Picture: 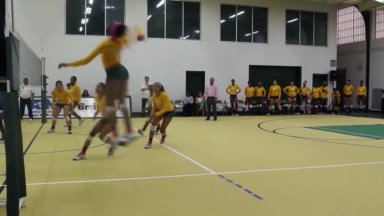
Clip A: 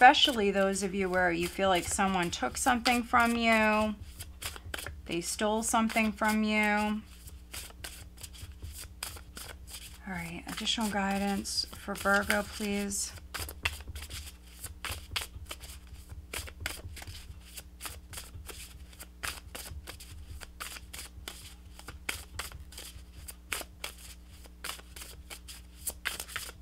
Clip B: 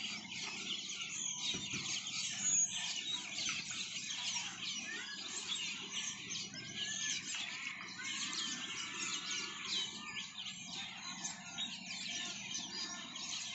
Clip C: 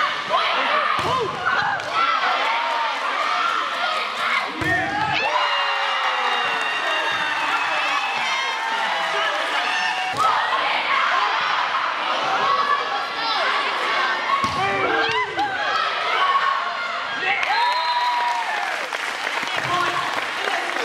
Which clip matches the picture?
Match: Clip C